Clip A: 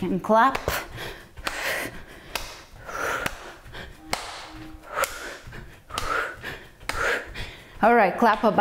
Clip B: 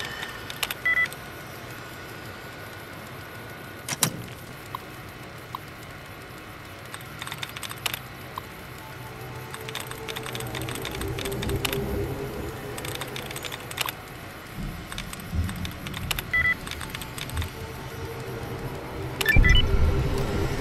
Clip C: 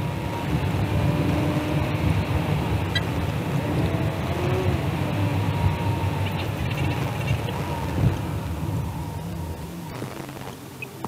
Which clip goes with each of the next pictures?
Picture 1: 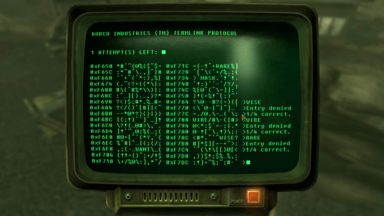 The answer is B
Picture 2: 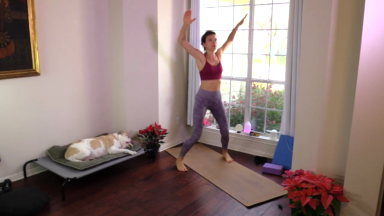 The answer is A